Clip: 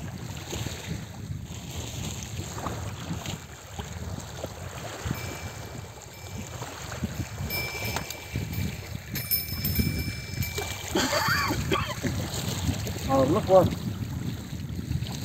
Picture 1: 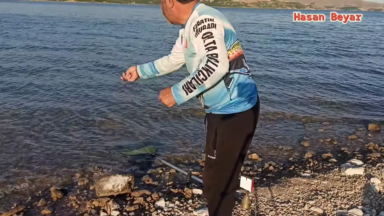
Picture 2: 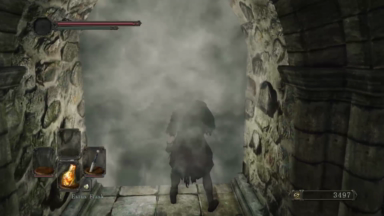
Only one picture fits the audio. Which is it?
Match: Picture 1